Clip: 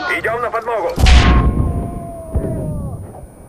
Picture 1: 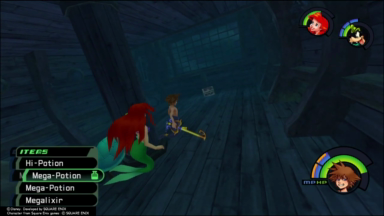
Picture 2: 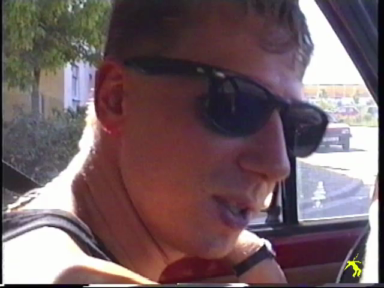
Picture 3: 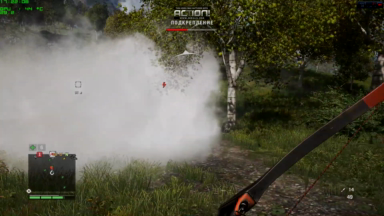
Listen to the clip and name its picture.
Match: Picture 3